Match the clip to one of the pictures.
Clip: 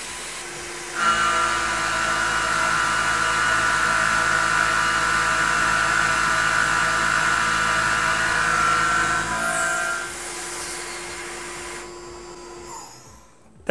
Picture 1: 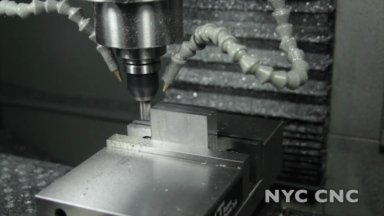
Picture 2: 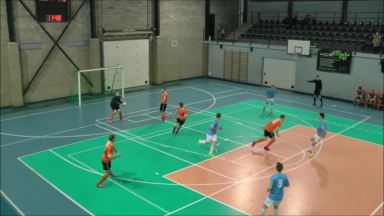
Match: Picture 1